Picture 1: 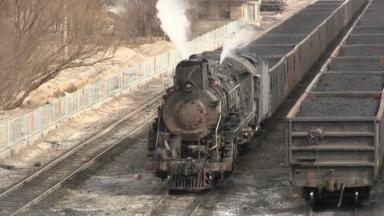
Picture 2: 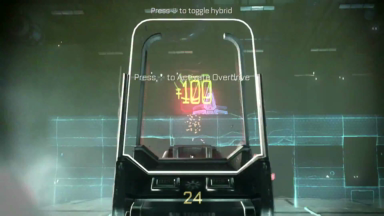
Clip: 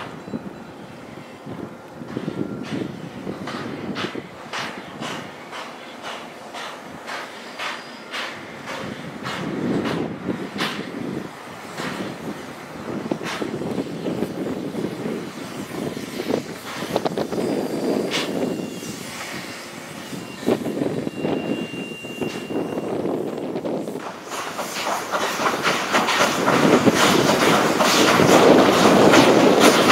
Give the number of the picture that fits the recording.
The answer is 1